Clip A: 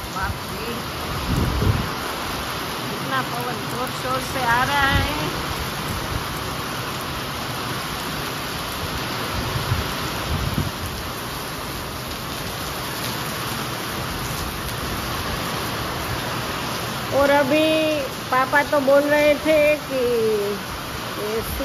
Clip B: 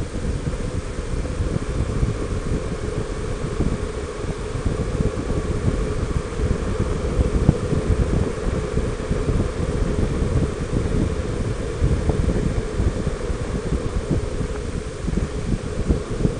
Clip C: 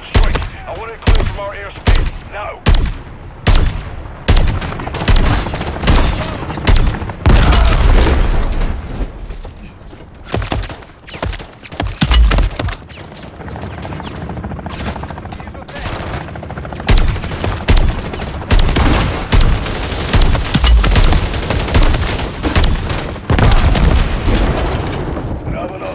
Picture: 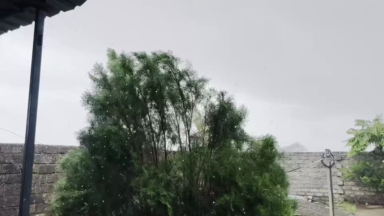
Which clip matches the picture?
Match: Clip A